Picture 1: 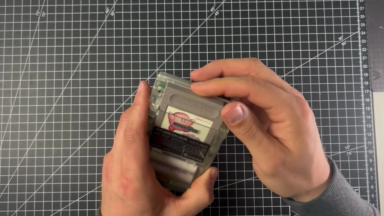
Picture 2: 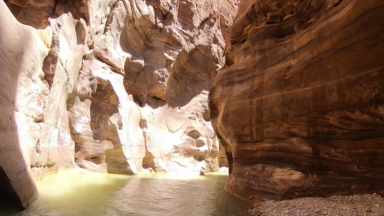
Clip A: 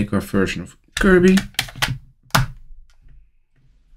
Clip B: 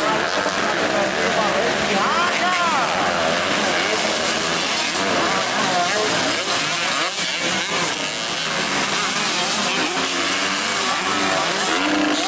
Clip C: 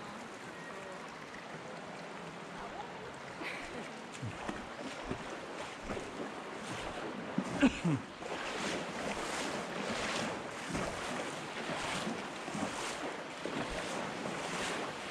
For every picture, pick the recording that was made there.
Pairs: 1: A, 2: C